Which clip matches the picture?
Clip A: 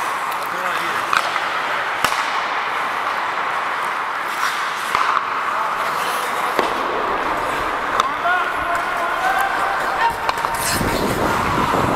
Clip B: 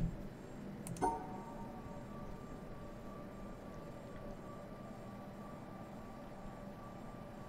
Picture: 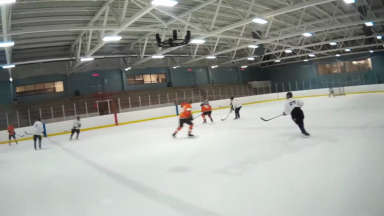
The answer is A